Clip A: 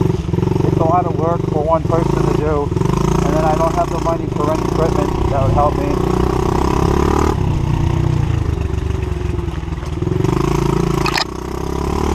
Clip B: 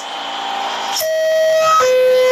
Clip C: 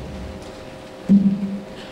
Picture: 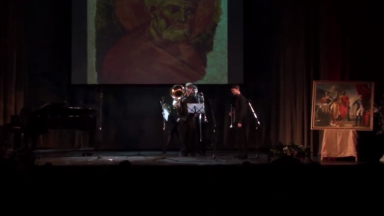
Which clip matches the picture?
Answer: C